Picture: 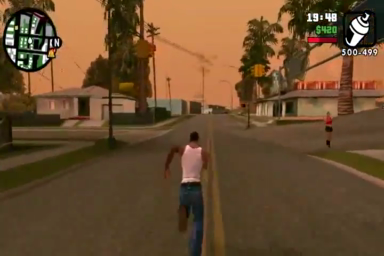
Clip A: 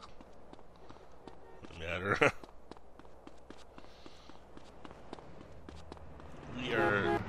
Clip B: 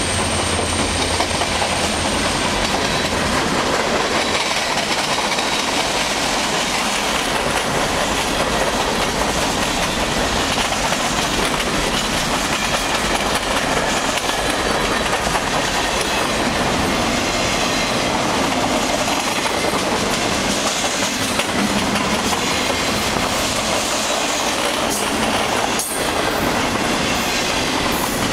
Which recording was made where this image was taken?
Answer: A